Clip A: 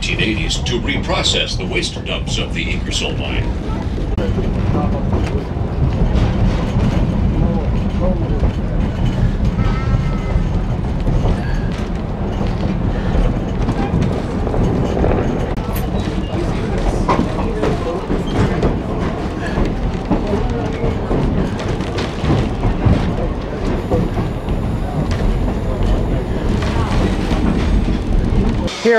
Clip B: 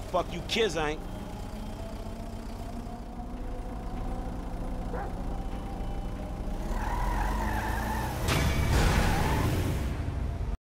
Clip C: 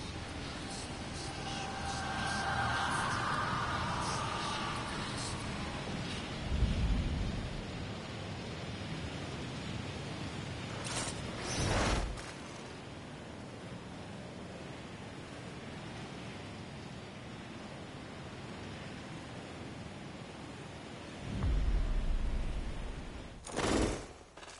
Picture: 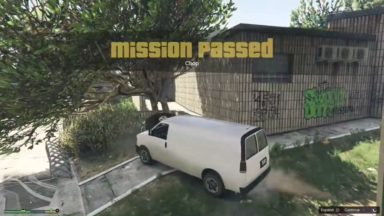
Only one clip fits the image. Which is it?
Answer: B